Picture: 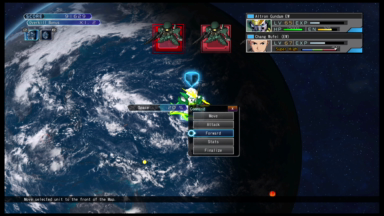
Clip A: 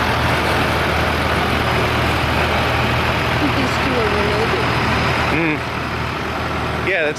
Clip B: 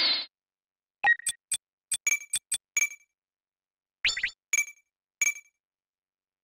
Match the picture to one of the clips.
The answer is B